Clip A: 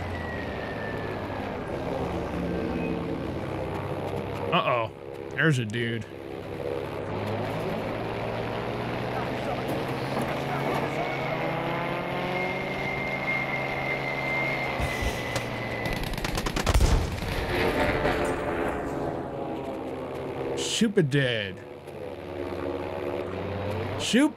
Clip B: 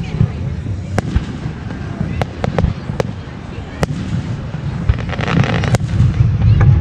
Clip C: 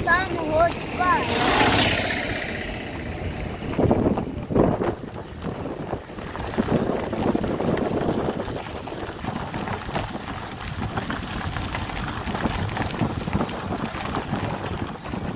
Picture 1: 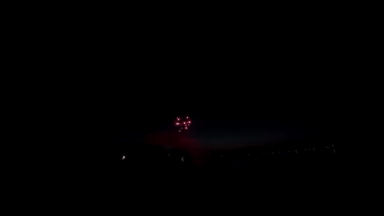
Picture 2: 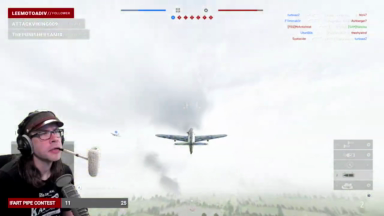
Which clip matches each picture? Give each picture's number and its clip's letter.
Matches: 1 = B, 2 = A